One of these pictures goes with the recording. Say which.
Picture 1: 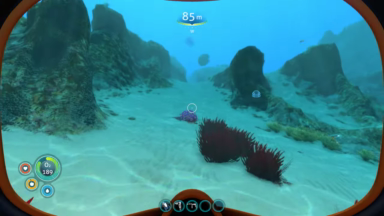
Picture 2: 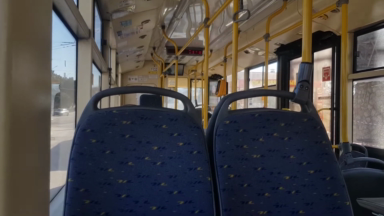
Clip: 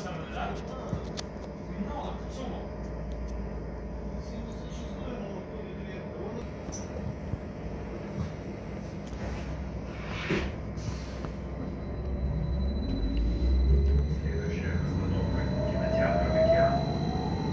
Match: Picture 2